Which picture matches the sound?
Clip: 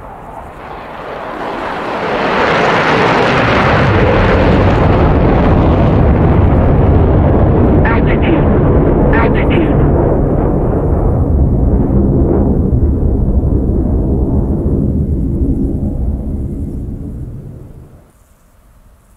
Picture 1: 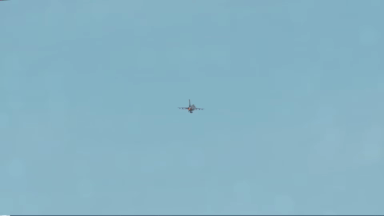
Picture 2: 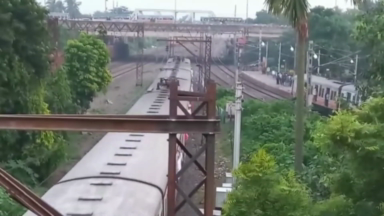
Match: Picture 1